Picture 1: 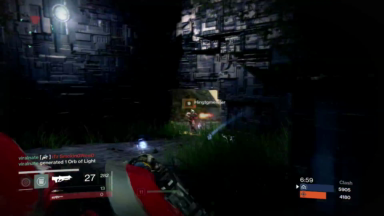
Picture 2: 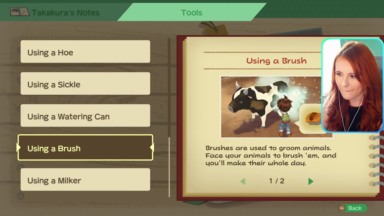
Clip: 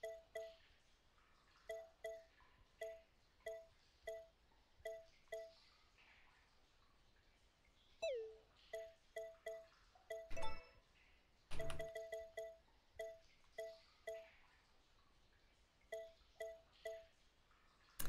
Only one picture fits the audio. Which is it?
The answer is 2